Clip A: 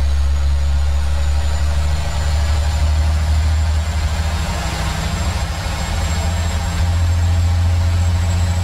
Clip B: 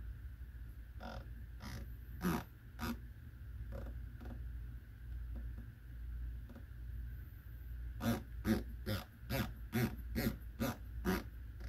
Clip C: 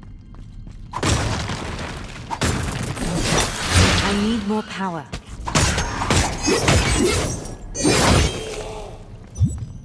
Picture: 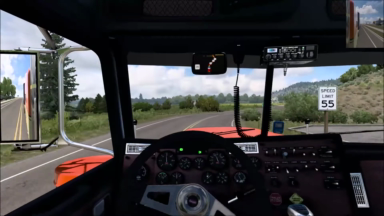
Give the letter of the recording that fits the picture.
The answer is A